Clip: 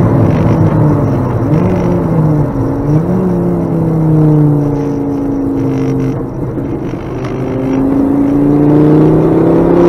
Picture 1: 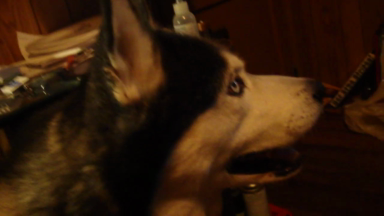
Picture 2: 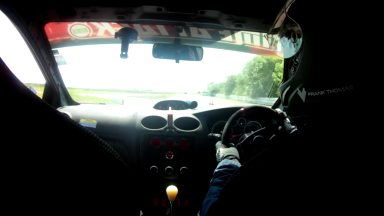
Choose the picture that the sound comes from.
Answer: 2